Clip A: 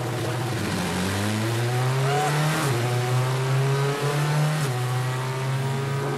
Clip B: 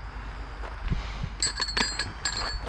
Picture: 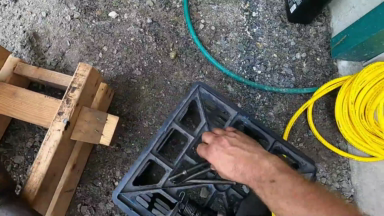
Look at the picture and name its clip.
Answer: B